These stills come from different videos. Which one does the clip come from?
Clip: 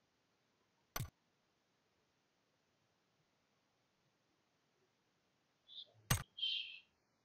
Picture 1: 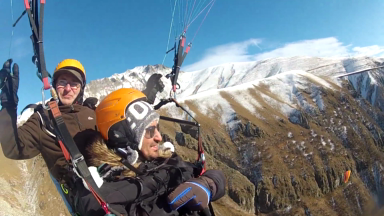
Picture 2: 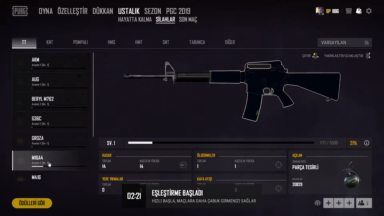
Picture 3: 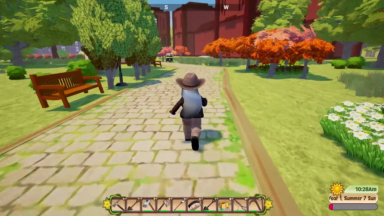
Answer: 2